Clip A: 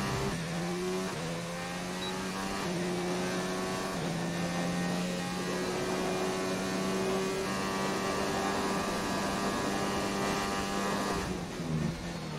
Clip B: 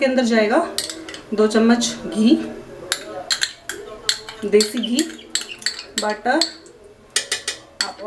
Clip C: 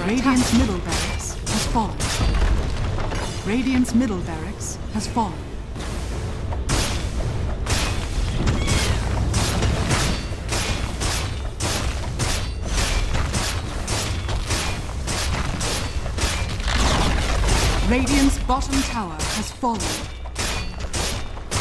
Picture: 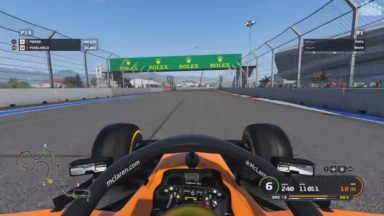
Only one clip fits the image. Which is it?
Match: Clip A